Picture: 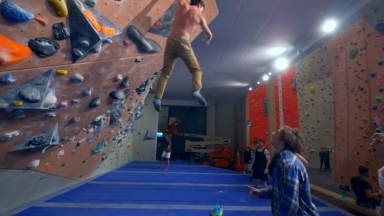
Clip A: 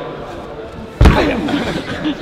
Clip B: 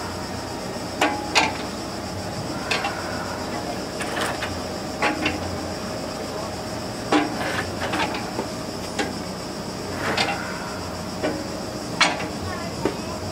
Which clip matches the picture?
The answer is A